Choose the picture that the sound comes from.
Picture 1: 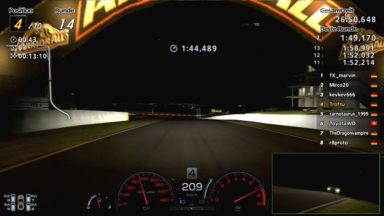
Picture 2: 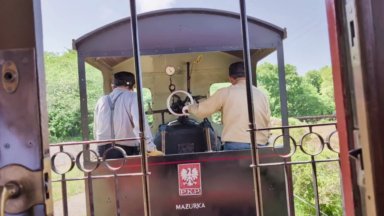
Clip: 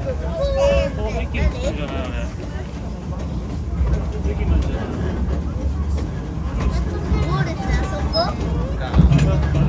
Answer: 2